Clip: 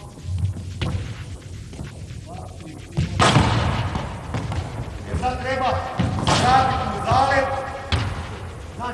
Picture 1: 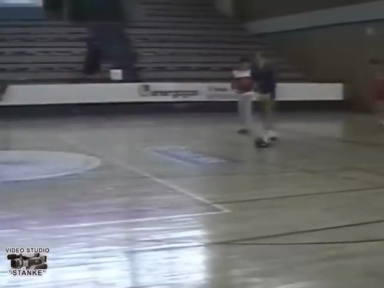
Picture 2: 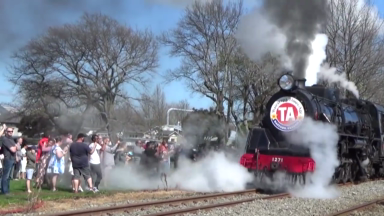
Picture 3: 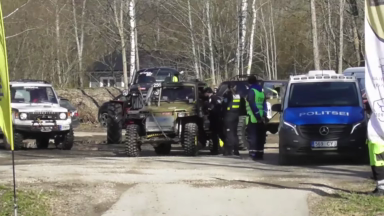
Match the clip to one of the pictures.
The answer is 1